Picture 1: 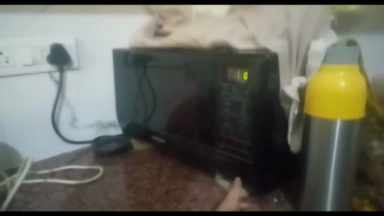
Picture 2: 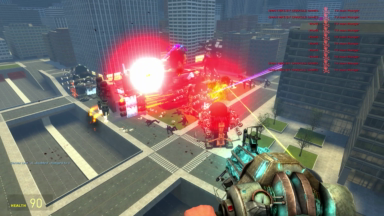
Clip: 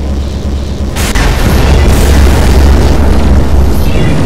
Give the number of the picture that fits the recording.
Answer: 2